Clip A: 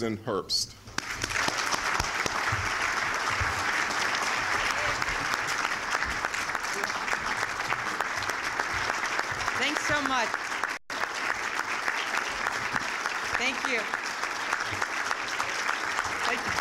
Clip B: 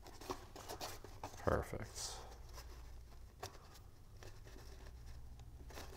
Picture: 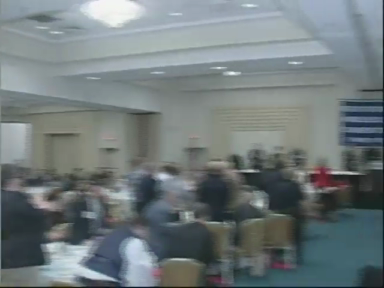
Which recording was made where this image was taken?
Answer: A